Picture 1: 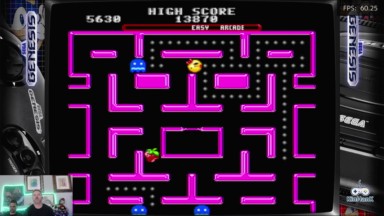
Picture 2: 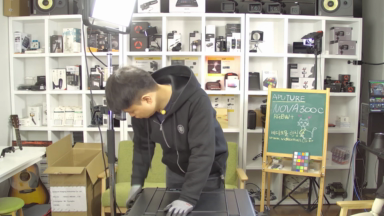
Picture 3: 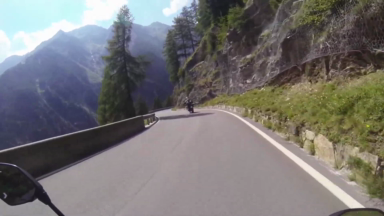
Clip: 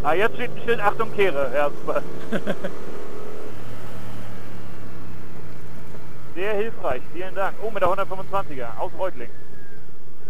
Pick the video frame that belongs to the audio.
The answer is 3